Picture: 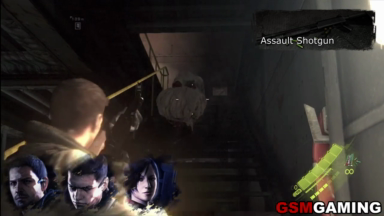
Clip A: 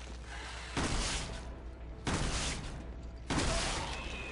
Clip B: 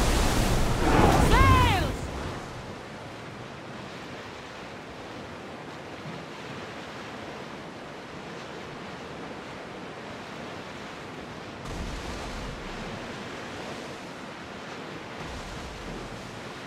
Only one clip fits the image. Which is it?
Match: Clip A